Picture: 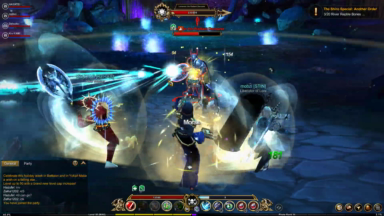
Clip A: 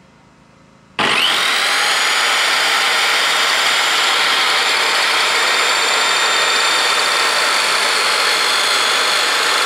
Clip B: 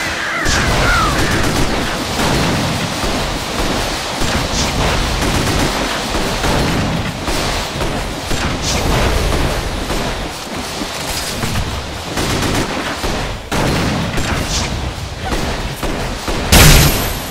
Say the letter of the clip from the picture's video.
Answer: B